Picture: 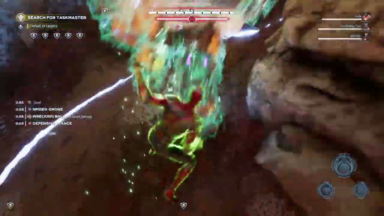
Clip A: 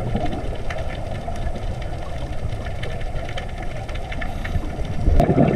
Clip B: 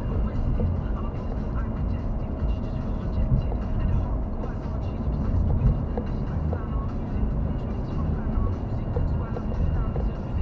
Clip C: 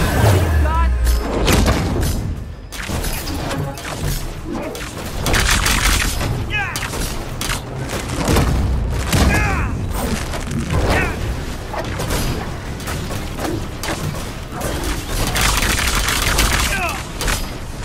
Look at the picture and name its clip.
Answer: C